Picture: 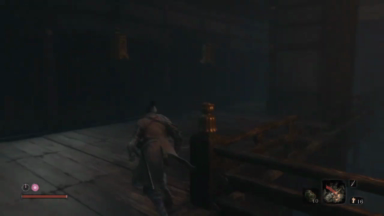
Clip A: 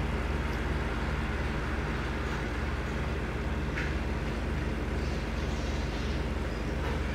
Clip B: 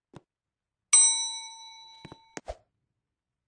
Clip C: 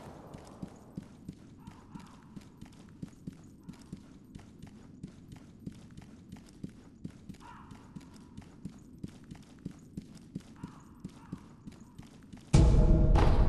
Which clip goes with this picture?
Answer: C